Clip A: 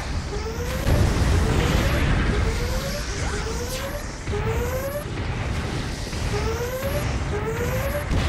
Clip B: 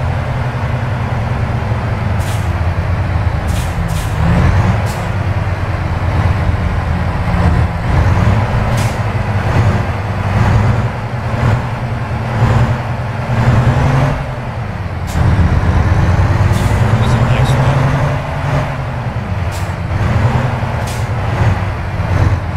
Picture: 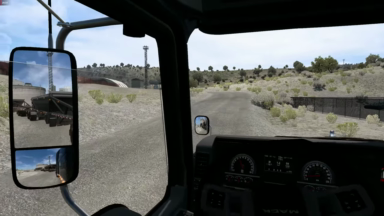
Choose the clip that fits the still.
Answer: B